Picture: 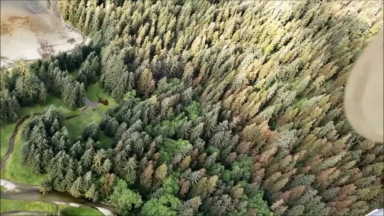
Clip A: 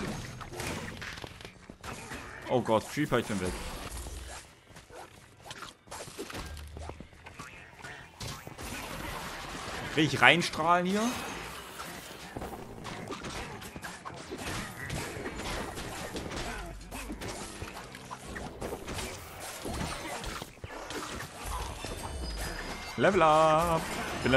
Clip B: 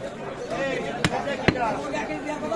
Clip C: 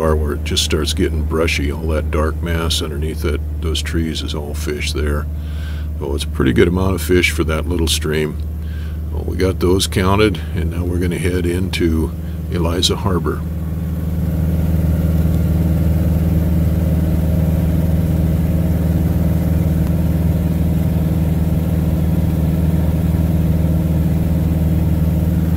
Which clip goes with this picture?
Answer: C